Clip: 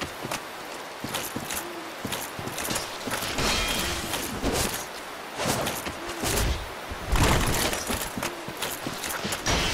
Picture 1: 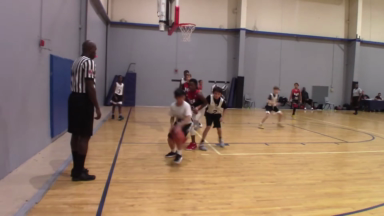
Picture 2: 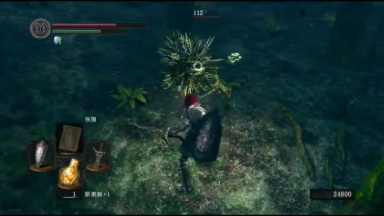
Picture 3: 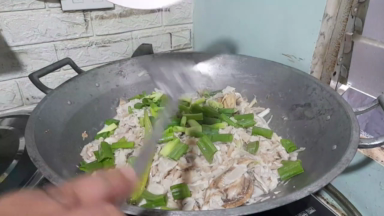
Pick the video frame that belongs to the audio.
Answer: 2